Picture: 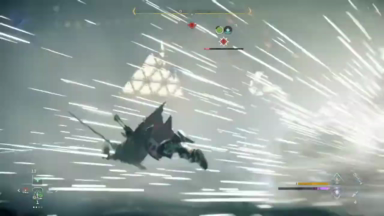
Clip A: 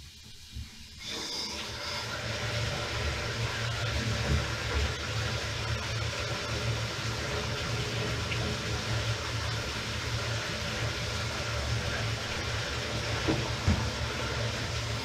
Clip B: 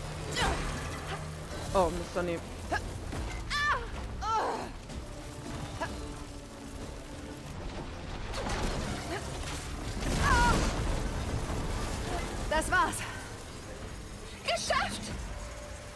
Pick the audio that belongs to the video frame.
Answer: B